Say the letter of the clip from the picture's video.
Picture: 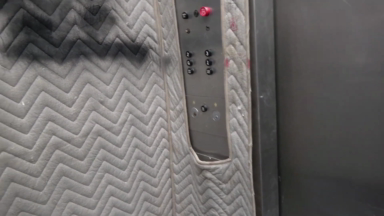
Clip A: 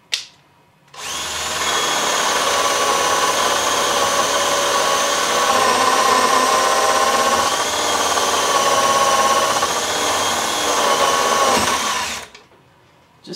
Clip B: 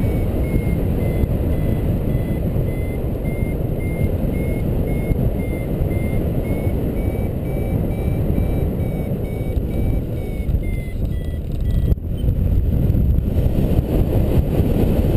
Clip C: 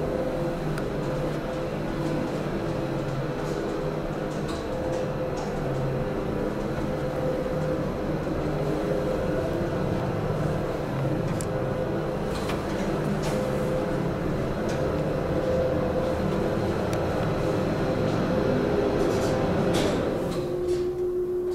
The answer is C